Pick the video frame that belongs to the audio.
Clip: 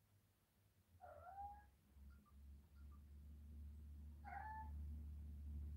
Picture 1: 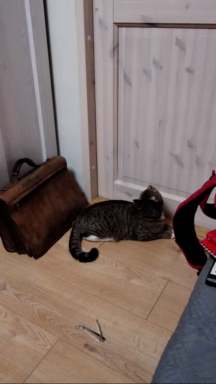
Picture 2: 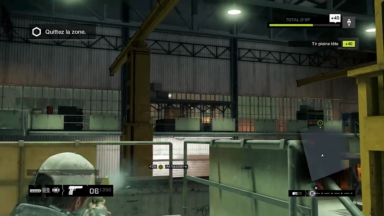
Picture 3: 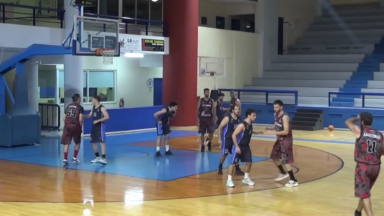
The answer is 1